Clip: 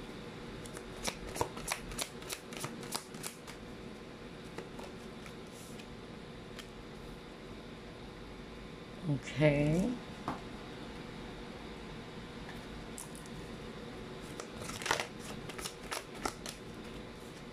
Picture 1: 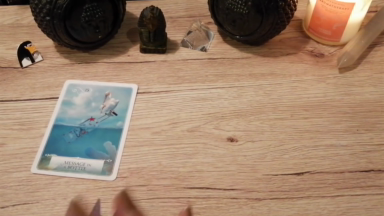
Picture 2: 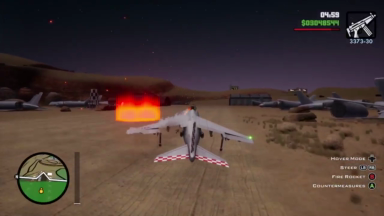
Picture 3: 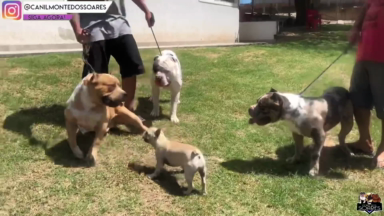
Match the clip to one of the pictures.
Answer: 1